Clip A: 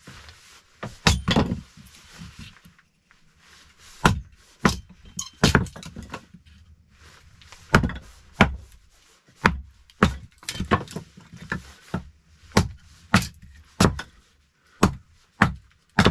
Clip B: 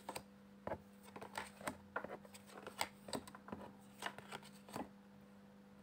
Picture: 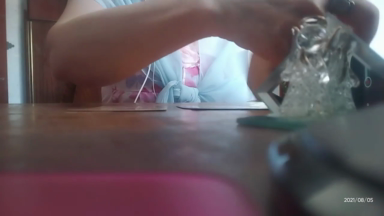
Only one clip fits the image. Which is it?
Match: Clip B